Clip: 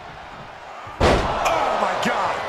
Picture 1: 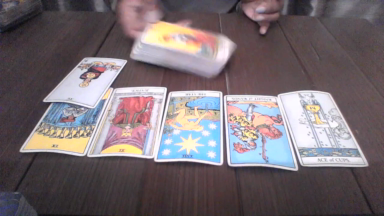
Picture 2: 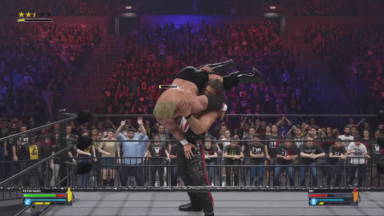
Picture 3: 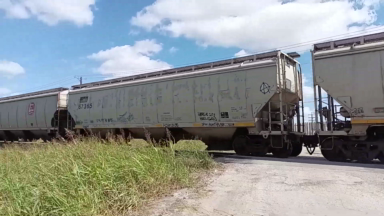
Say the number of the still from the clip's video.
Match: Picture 2